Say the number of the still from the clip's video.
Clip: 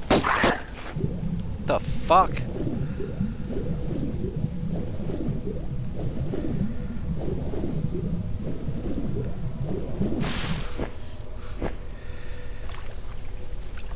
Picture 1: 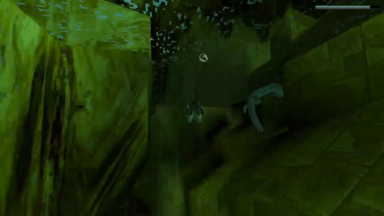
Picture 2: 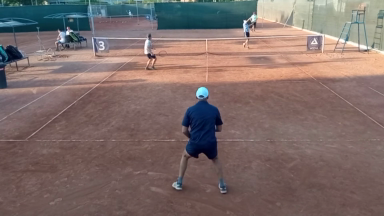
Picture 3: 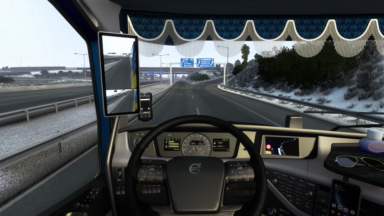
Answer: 1